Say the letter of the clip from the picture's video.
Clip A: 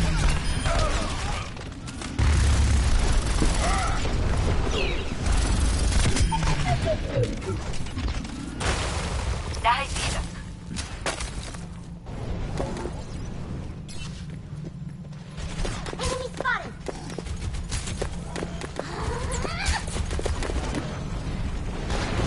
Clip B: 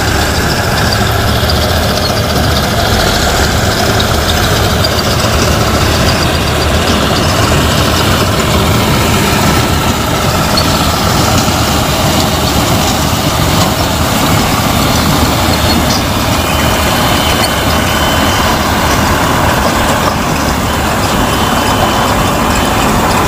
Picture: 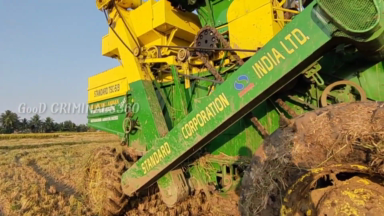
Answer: B